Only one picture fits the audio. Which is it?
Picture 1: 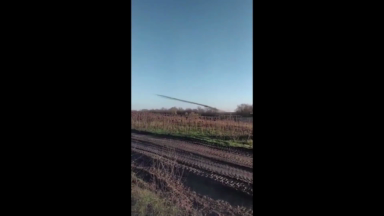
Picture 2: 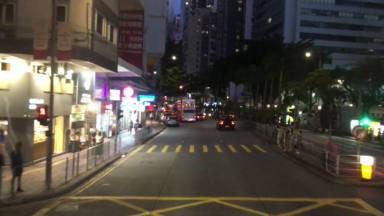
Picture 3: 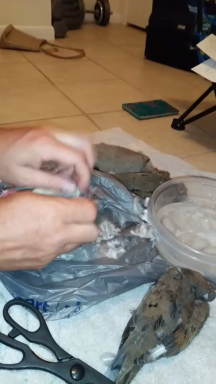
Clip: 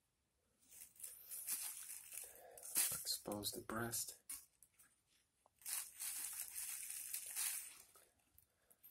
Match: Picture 3